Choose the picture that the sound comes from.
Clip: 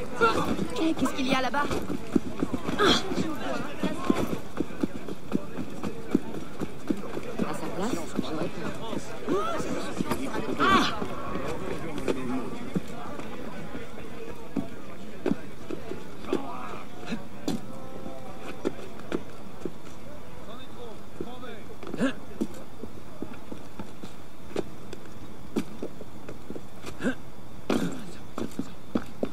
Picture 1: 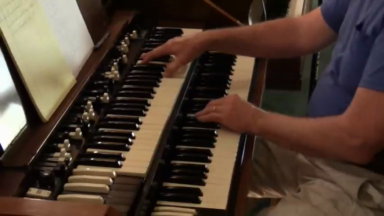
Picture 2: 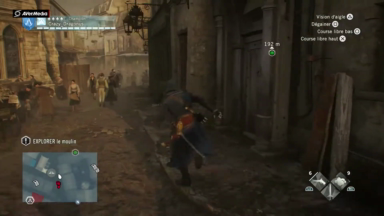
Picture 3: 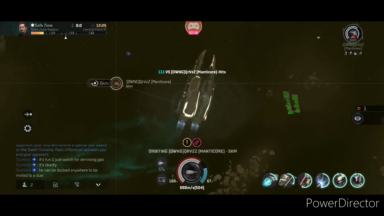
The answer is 2